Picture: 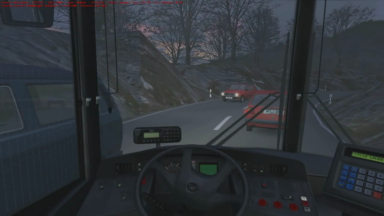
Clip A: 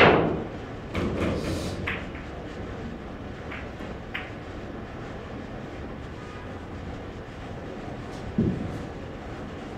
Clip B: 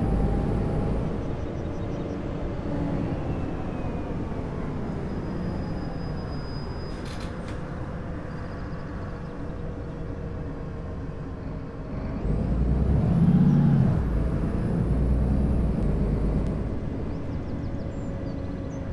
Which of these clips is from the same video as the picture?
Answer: B